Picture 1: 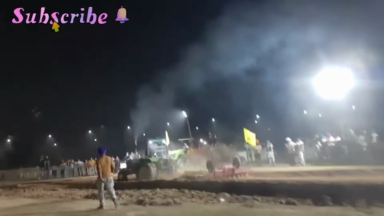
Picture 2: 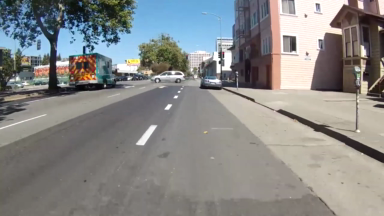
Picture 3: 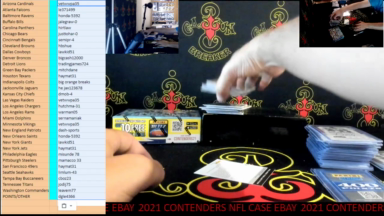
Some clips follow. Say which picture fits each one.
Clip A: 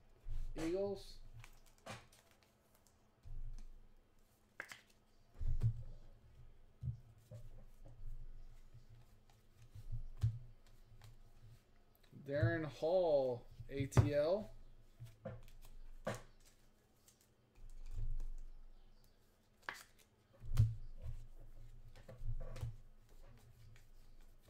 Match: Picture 3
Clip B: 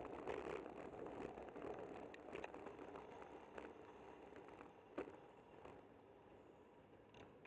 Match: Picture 2